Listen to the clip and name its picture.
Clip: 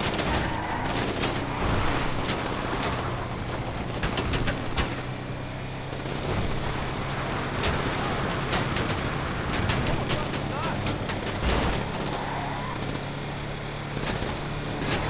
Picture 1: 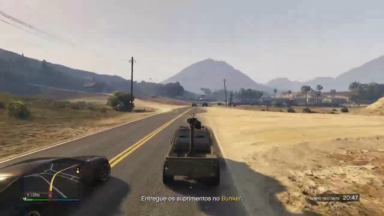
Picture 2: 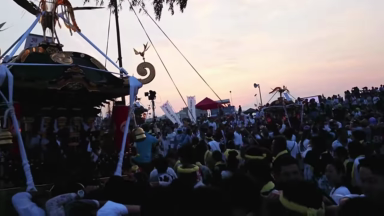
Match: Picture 1